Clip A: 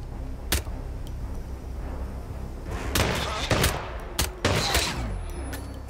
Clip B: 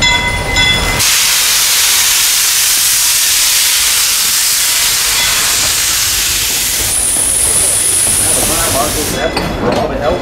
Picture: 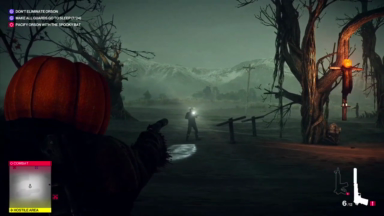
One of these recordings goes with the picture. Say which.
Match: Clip A